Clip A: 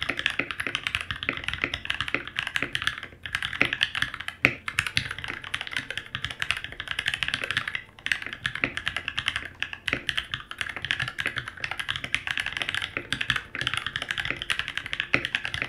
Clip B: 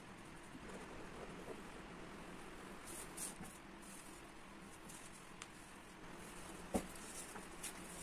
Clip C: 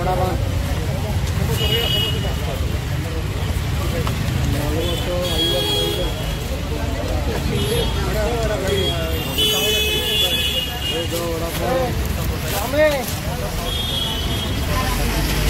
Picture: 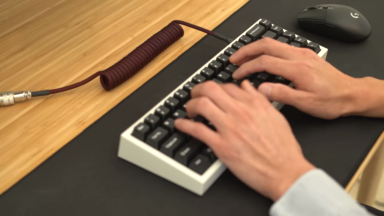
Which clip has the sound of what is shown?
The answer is A